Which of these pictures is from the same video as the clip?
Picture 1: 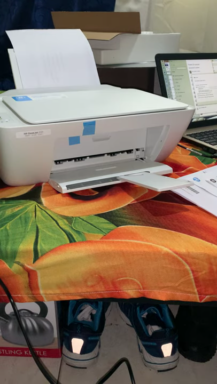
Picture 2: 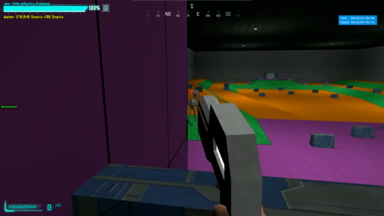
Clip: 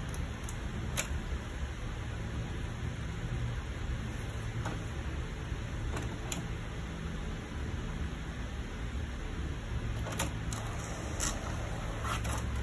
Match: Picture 1